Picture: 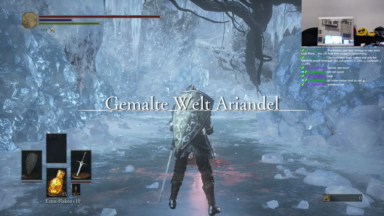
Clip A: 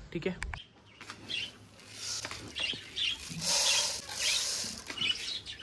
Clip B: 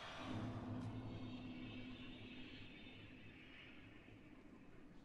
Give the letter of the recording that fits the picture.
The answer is B